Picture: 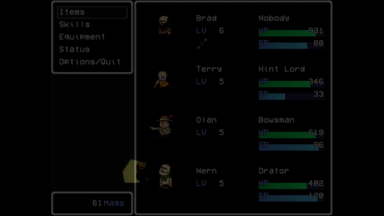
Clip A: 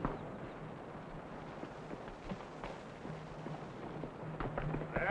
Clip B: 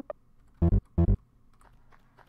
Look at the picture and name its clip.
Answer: B